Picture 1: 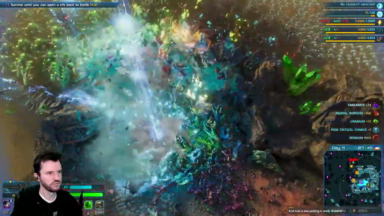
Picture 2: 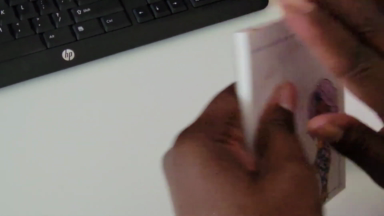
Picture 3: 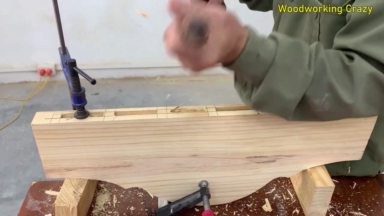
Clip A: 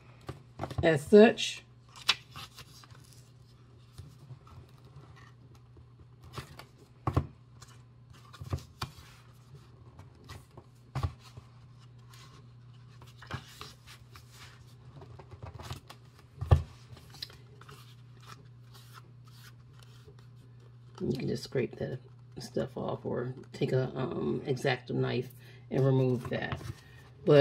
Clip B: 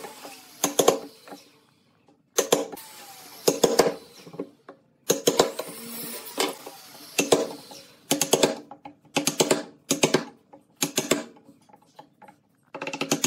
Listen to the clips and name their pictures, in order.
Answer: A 2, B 3